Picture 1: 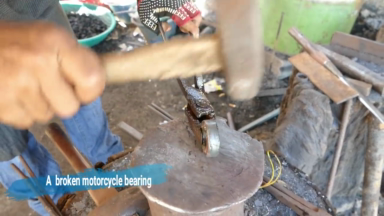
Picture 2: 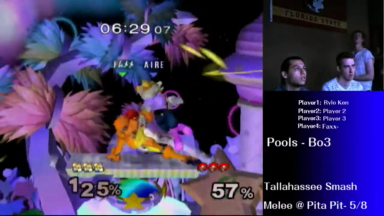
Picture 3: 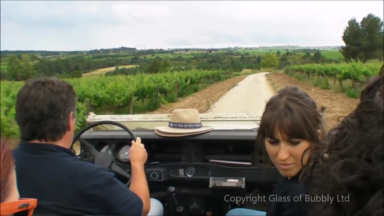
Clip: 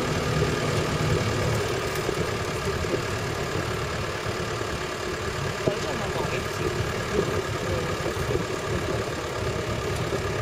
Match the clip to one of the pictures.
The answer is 3